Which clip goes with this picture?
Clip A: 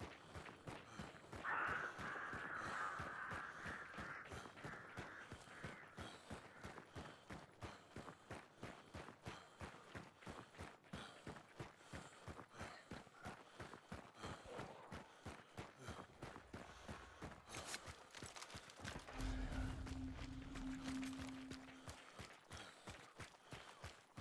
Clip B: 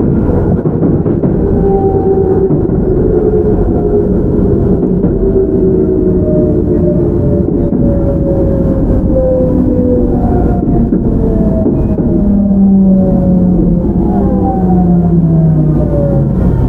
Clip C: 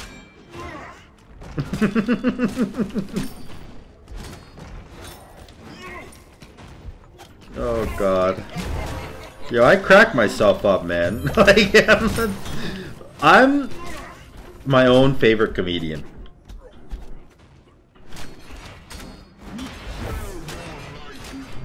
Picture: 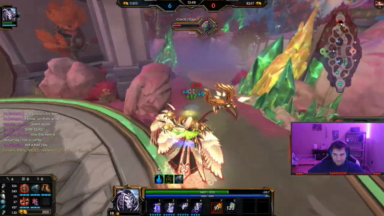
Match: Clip C